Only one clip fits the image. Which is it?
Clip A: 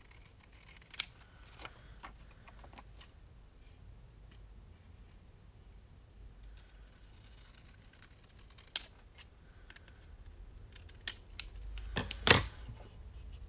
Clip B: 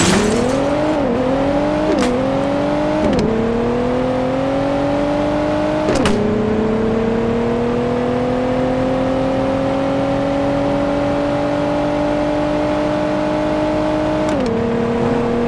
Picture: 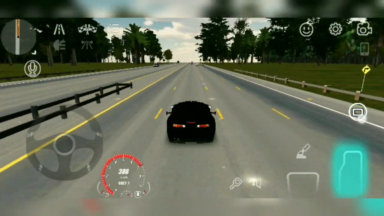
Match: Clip B